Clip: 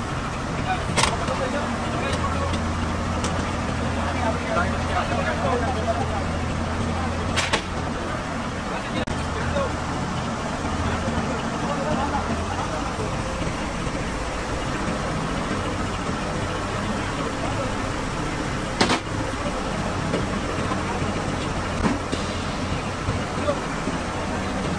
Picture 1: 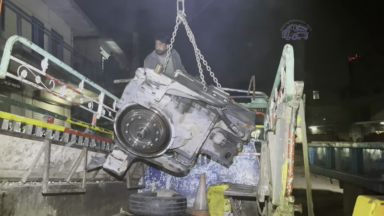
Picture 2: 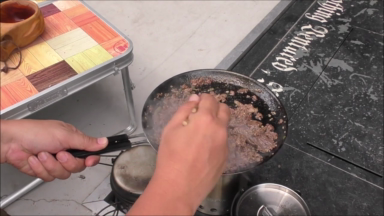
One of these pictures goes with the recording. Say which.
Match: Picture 1